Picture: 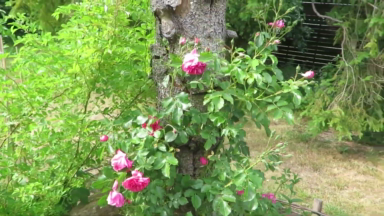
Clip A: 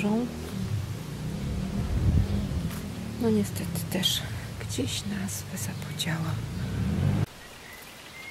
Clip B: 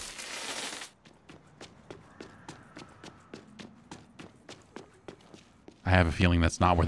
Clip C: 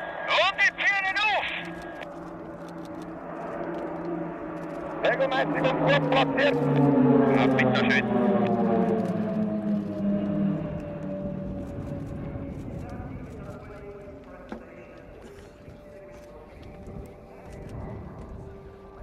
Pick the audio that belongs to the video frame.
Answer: A